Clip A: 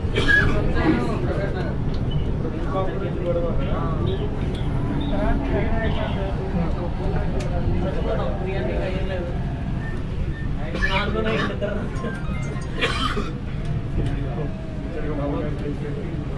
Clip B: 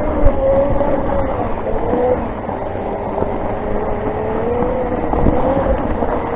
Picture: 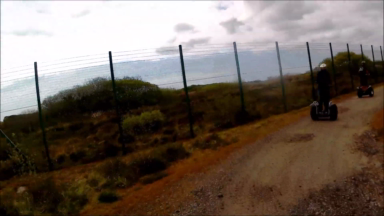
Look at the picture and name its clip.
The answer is B